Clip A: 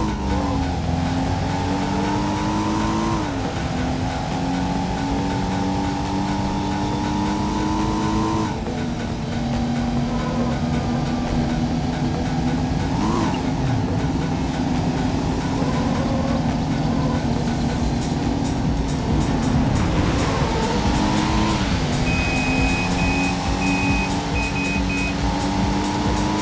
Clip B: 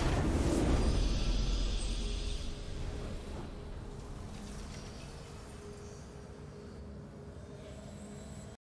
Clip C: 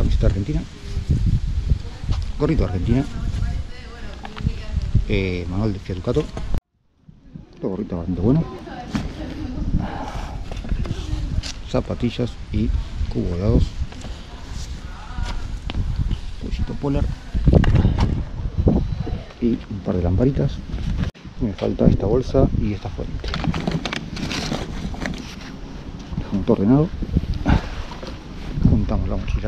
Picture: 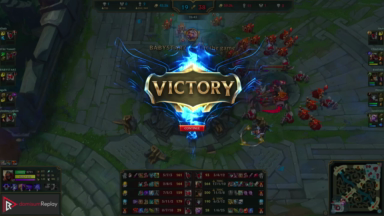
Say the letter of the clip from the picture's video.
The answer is B